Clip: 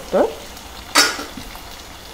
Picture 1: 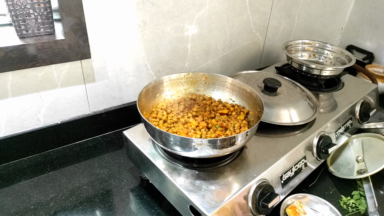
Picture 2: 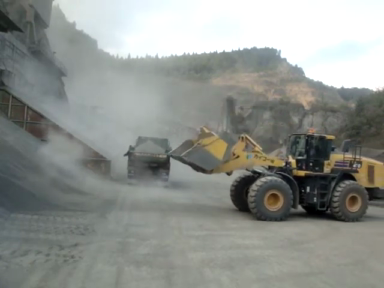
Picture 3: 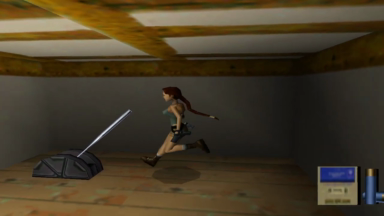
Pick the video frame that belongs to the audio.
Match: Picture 1